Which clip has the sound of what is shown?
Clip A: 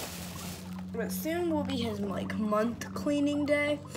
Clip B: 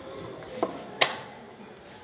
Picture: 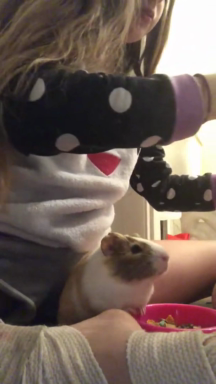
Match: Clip A